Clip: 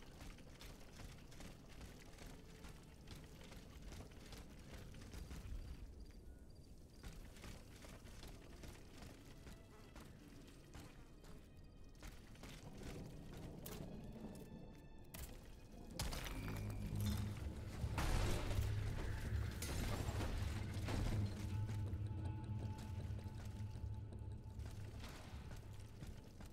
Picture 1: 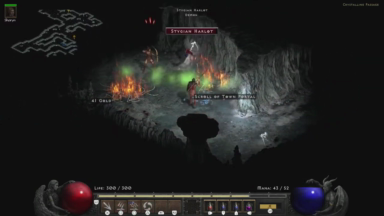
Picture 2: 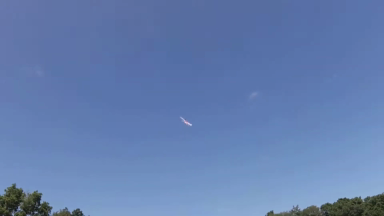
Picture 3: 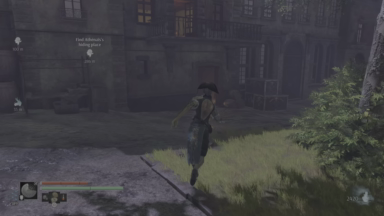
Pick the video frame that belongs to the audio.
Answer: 3